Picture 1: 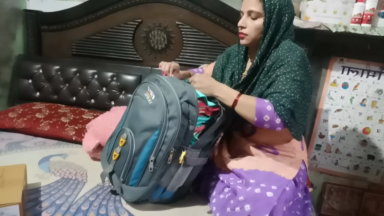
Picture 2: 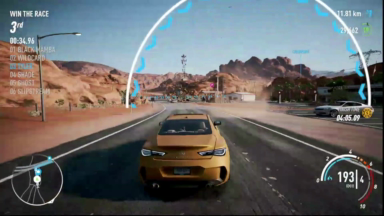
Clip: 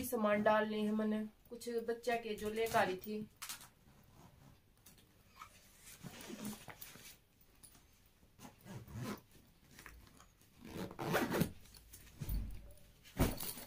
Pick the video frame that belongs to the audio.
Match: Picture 1